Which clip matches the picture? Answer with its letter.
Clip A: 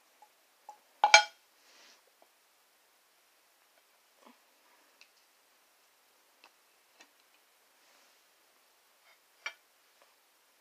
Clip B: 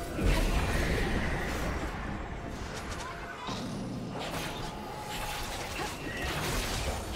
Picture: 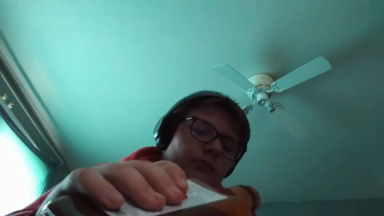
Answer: A